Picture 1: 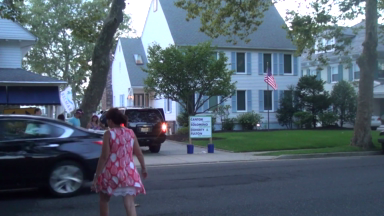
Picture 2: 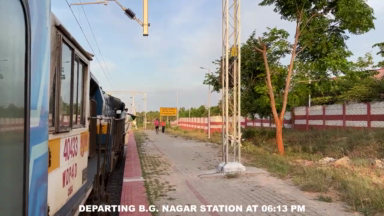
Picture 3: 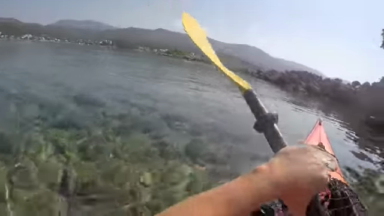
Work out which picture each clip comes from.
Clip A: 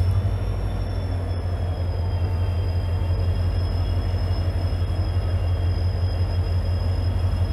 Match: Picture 2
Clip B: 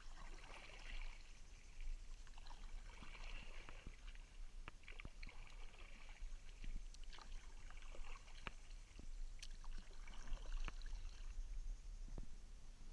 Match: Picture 3